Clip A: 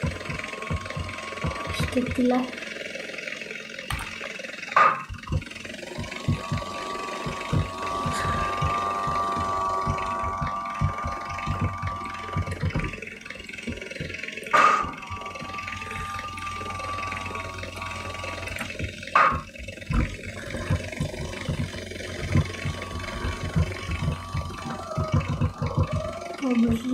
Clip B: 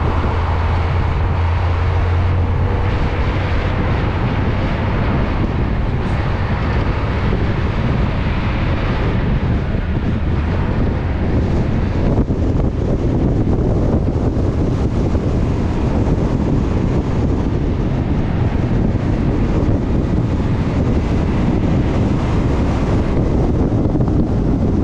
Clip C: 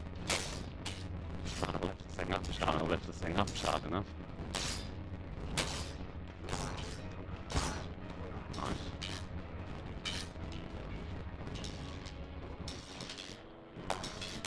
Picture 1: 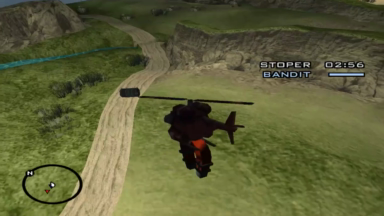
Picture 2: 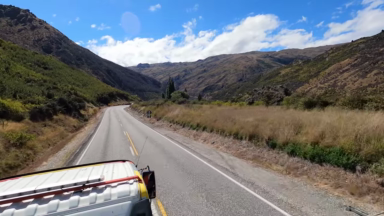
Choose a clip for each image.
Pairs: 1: A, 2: B